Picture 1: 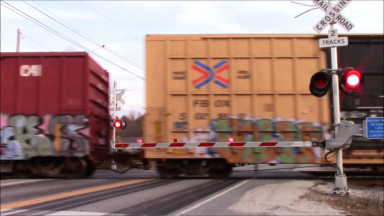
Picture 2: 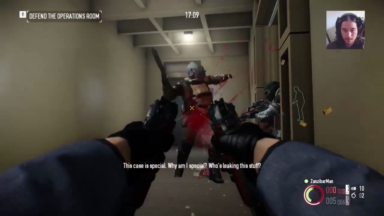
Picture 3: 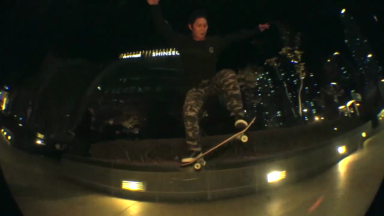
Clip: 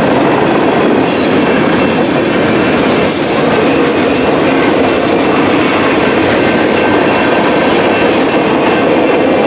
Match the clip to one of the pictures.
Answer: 1